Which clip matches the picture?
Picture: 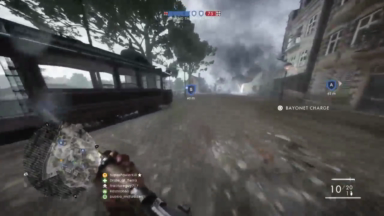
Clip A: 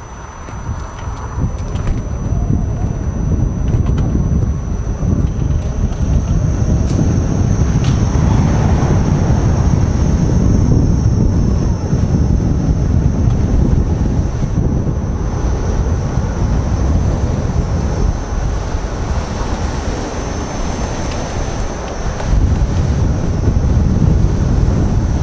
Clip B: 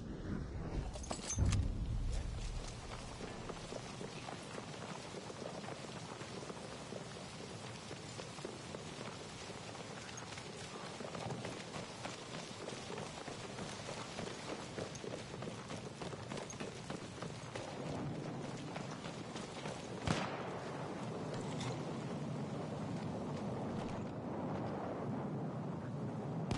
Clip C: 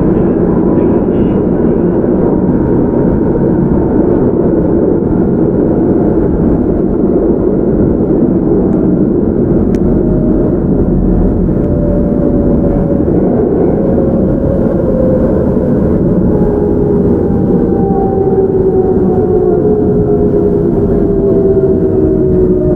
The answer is B